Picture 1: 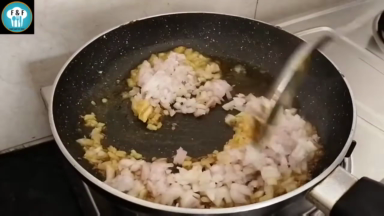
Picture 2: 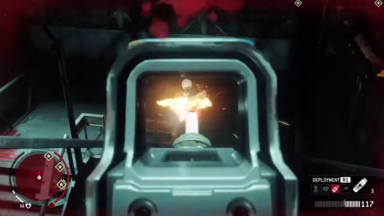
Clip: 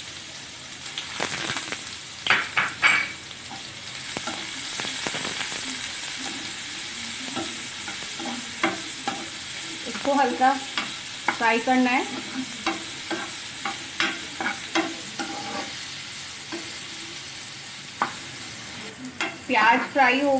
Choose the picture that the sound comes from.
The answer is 1